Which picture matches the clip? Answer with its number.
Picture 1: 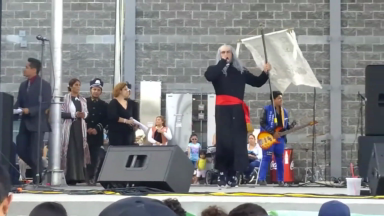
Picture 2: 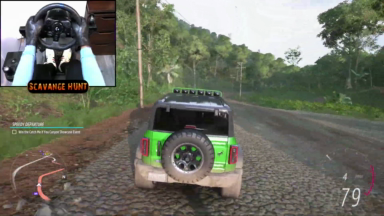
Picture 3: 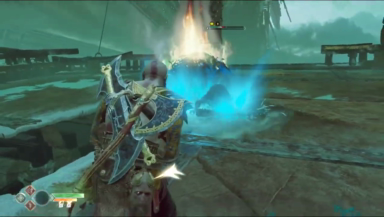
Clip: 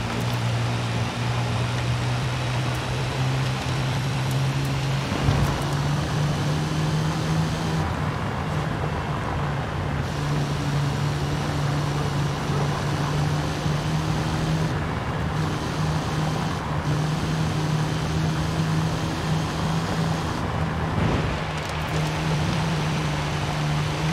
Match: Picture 2